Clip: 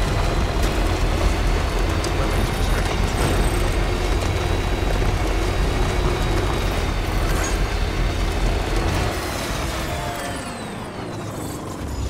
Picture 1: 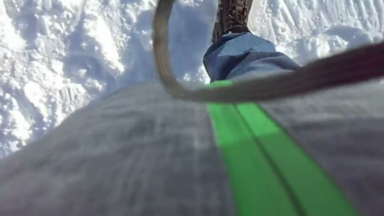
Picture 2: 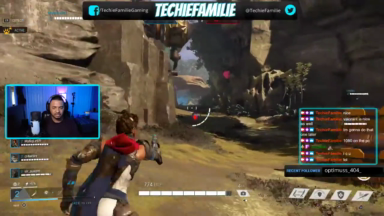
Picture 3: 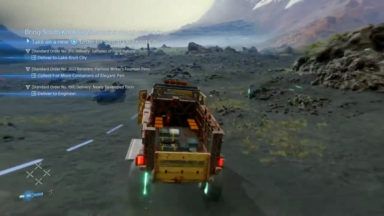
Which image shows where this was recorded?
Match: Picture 3